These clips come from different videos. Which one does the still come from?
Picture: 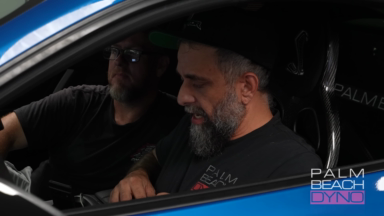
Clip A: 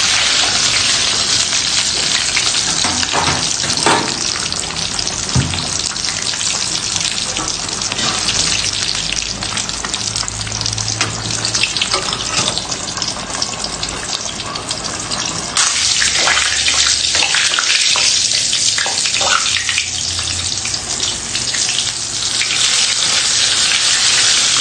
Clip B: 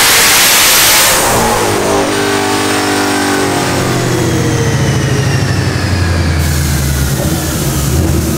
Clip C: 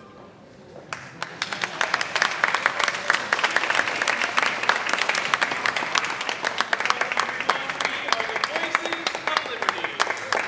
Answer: B